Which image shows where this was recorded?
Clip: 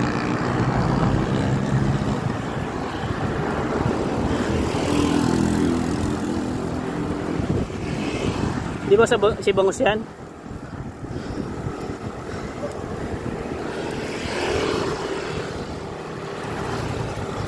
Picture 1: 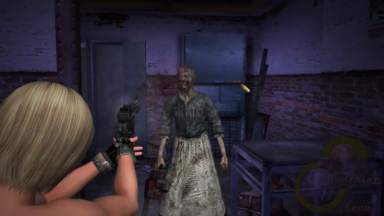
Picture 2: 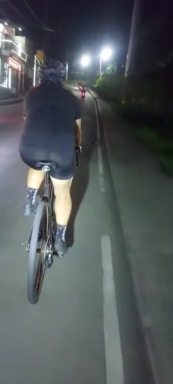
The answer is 2